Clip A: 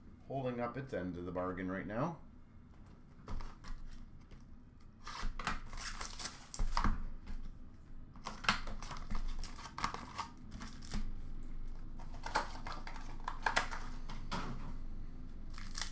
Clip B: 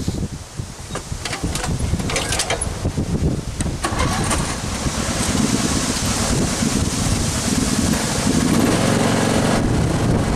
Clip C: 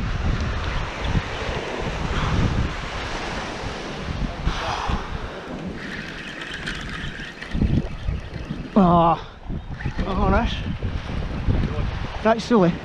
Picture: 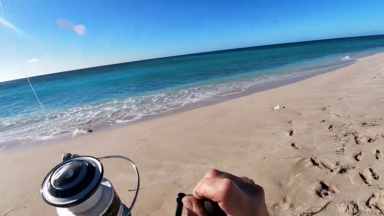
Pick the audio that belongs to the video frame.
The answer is C